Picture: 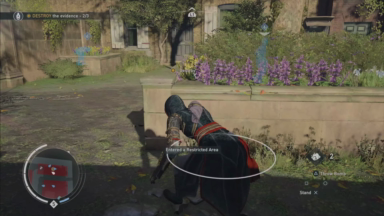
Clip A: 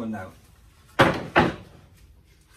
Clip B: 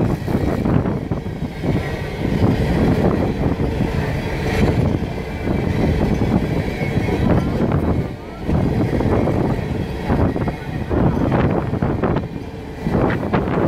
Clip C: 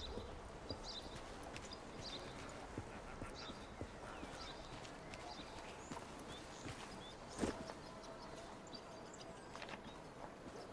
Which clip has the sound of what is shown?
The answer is C